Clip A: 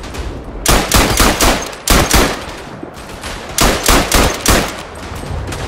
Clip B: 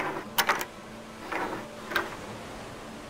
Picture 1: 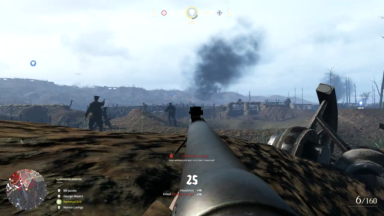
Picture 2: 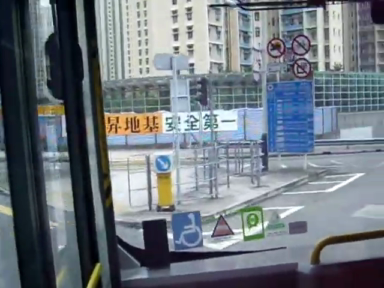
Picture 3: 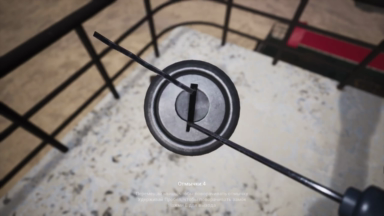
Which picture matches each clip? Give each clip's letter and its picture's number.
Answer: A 1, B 3